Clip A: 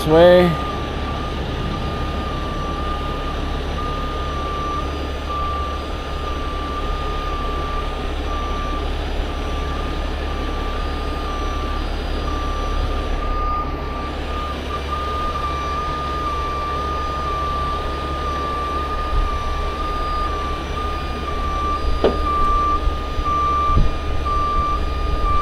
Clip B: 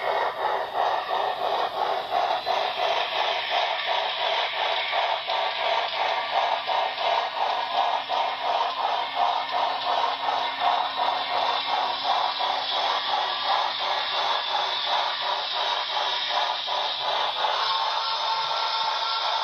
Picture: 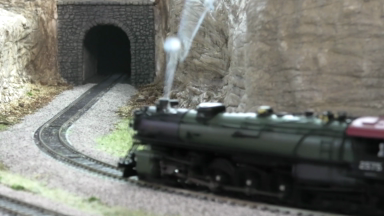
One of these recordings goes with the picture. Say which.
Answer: B